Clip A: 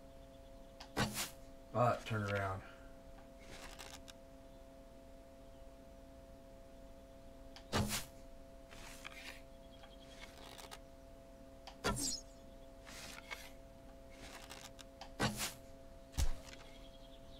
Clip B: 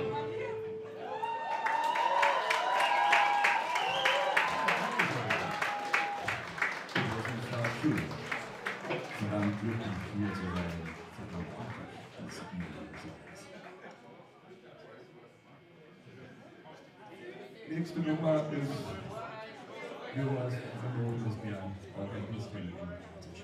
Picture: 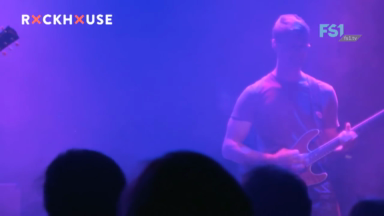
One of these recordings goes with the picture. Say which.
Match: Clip B